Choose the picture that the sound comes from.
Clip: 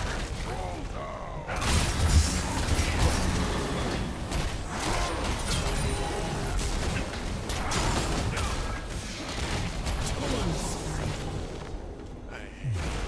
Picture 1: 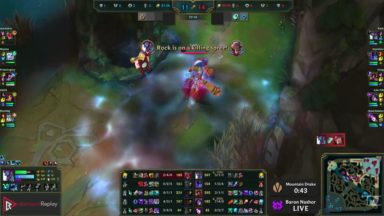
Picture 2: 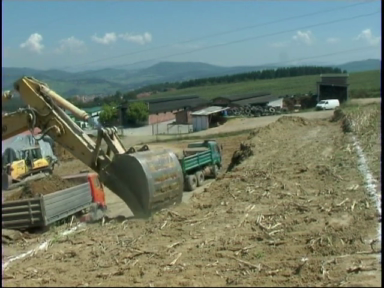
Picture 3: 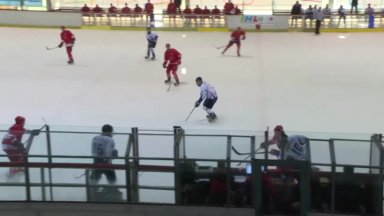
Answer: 1